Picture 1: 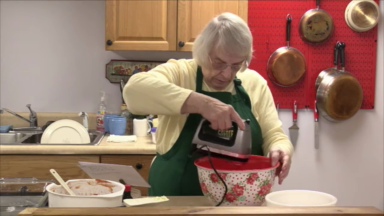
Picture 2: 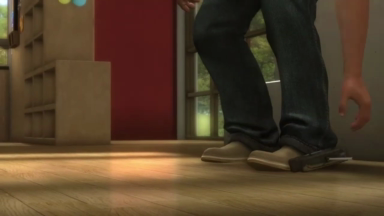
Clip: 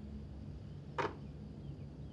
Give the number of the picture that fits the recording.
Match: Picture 2